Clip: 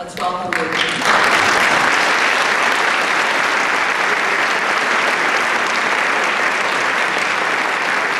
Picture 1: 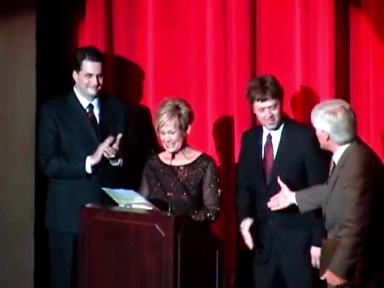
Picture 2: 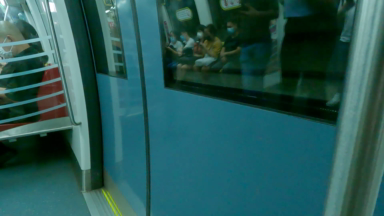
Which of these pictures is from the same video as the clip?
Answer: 1